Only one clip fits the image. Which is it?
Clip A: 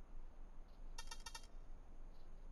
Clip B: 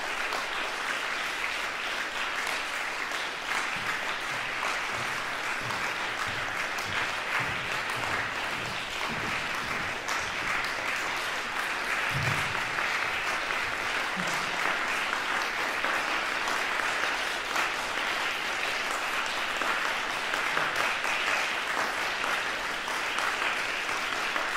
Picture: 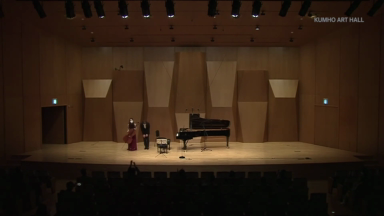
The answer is B